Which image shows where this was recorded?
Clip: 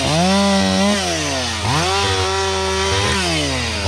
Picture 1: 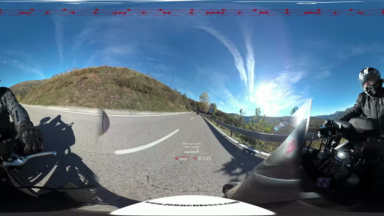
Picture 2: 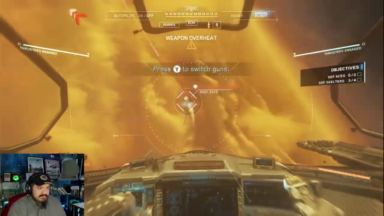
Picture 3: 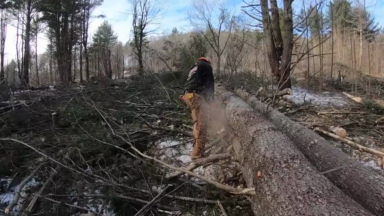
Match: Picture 3